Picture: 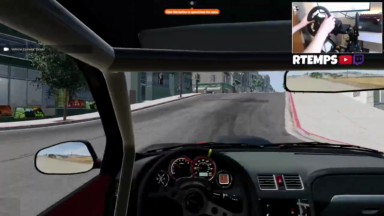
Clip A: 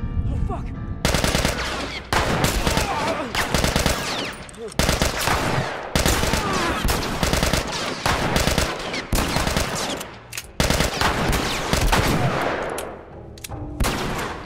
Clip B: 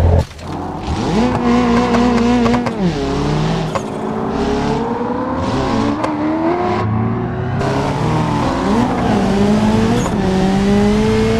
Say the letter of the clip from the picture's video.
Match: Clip B